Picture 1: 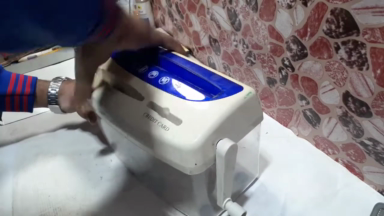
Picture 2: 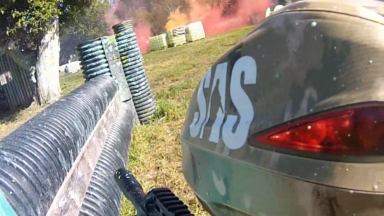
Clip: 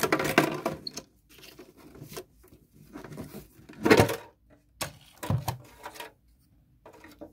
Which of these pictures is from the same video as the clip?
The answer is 1